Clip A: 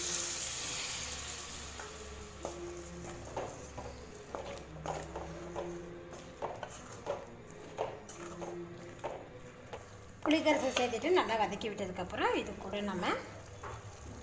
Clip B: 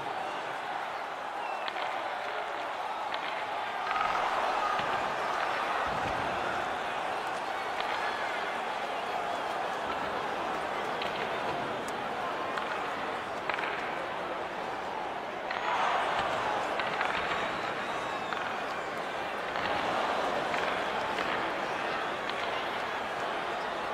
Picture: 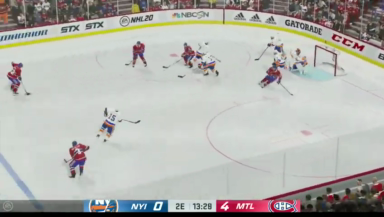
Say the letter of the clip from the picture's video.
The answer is B